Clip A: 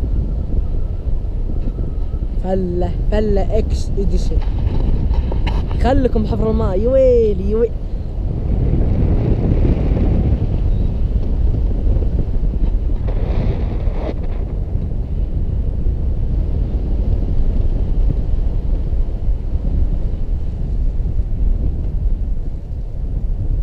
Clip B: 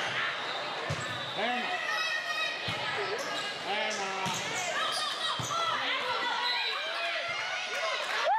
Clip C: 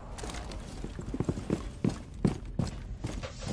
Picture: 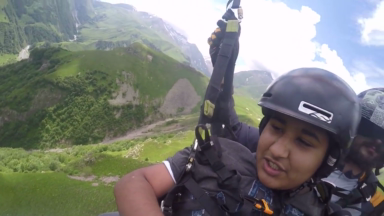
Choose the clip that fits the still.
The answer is A